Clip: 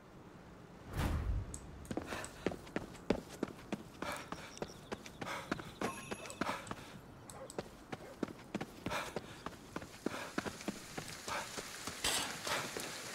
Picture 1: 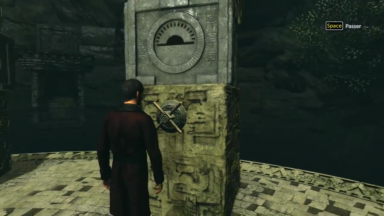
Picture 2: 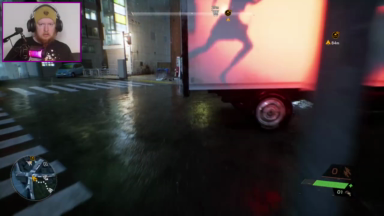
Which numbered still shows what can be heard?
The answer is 2